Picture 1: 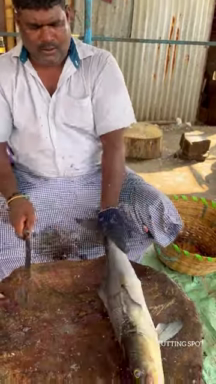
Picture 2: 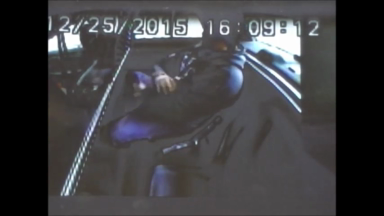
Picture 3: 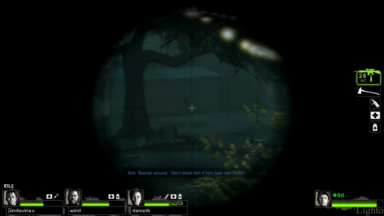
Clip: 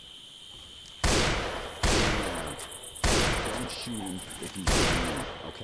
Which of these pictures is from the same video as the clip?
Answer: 3